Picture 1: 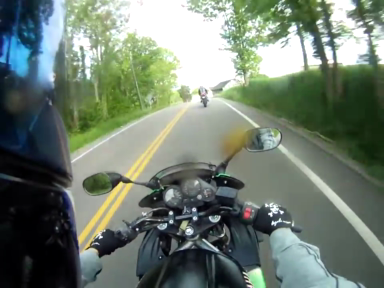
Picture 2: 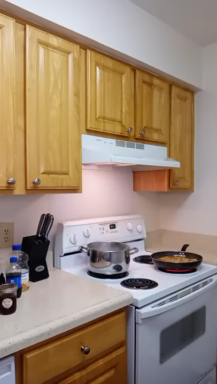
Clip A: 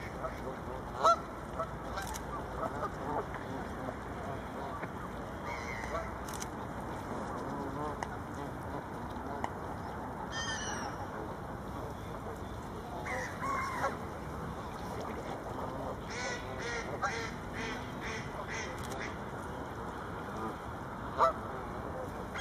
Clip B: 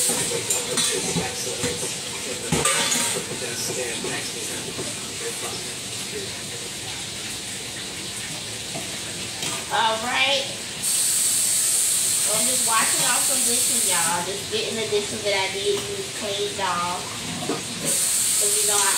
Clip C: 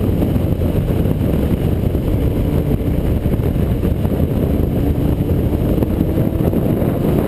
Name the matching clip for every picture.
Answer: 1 C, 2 B